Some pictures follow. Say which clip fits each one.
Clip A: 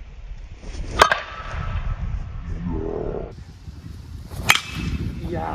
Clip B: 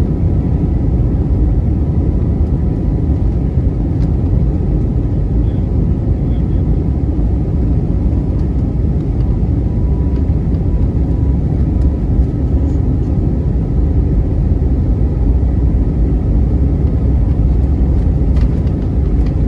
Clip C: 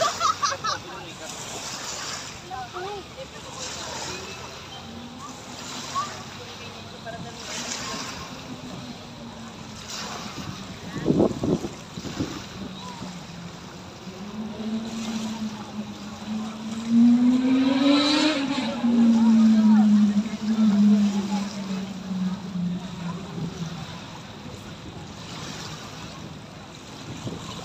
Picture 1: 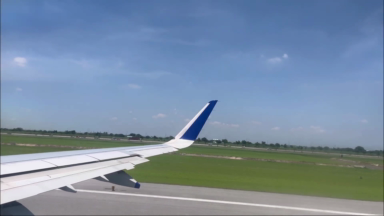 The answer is B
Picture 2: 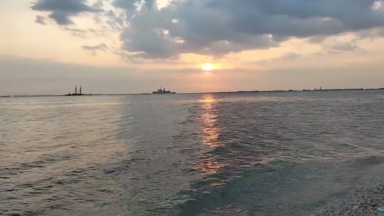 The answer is C